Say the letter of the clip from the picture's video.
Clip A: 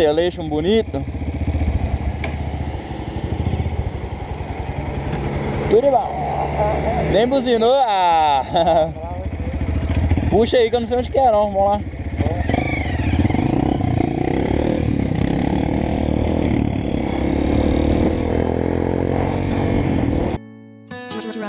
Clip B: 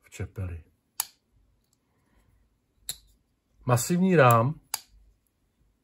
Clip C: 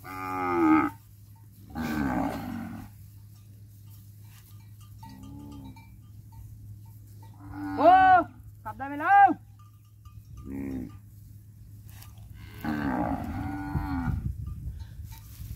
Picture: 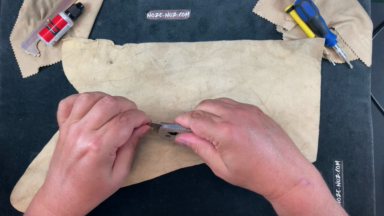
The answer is B